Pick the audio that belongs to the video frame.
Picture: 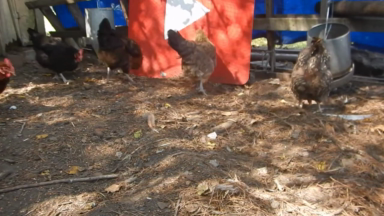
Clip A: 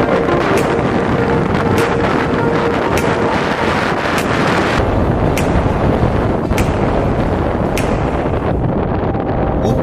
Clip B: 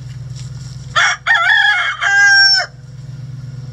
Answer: B